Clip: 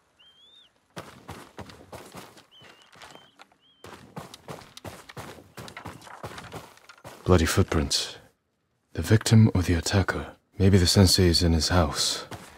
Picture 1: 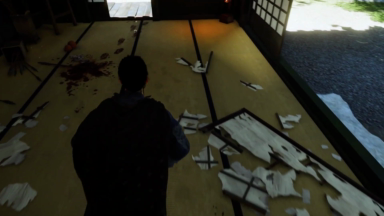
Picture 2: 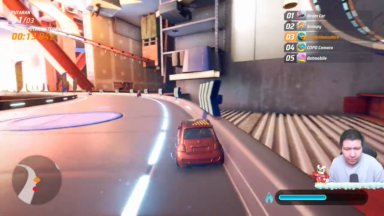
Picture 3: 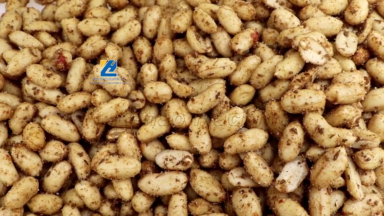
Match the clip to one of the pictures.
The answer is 1